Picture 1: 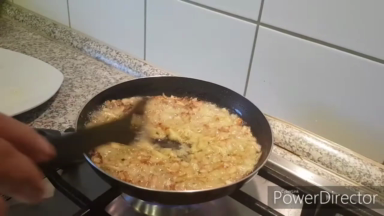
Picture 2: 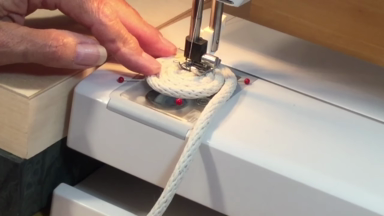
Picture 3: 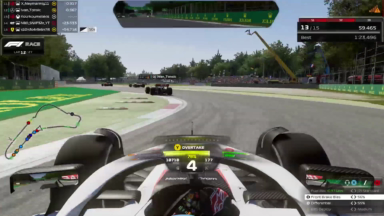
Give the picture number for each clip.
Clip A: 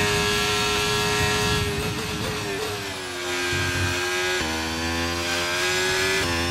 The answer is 3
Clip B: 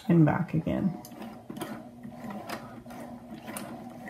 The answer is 2